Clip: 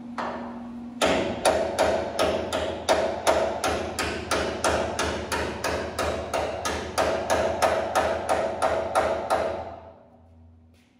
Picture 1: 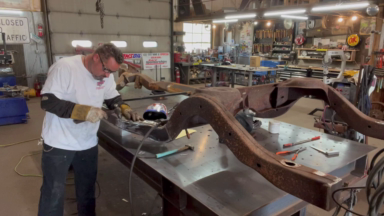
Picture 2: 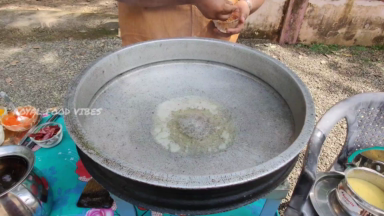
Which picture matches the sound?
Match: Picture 1